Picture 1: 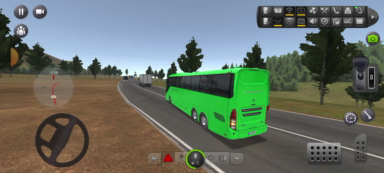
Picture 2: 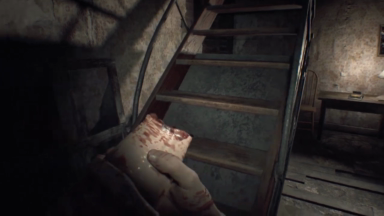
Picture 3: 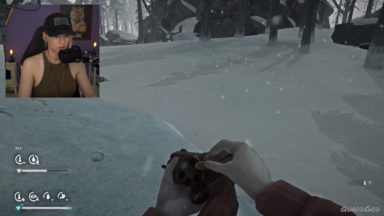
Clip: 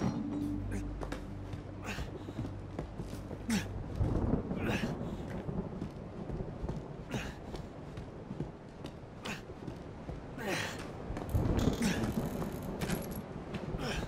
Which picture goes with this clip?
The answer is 2